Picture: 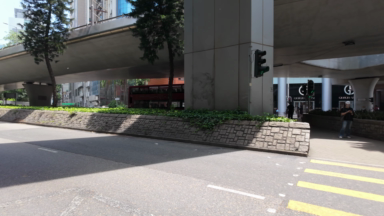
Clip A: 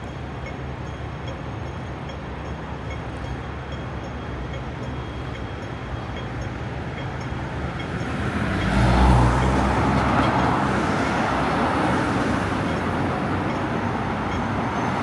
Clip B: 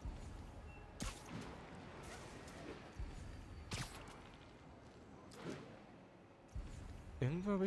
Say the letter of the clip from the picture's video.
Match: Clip A